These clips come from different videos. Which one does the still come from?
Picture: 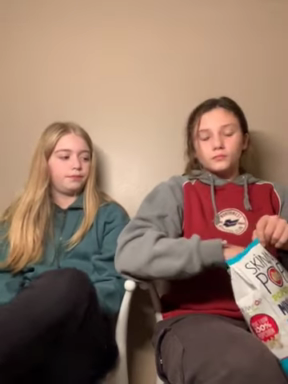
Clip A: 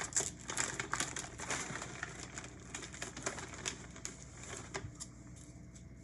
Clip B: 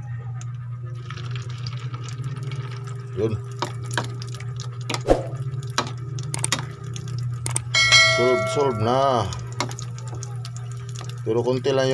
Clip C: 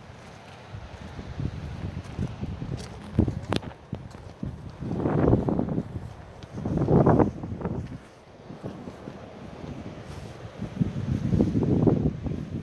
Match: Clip A